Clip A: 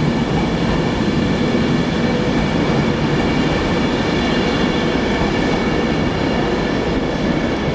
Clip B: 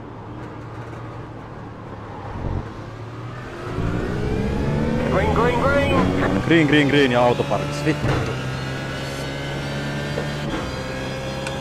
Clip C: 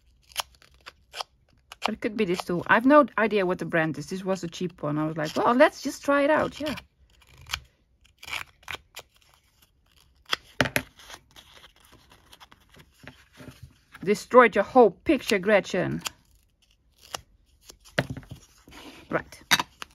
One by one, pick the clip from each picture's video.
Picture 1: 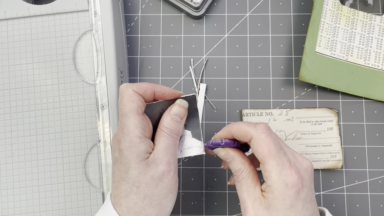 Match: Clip C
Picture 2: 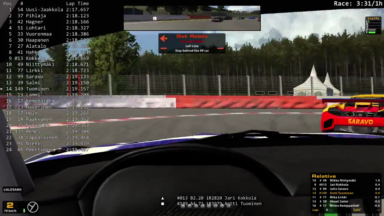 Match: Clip B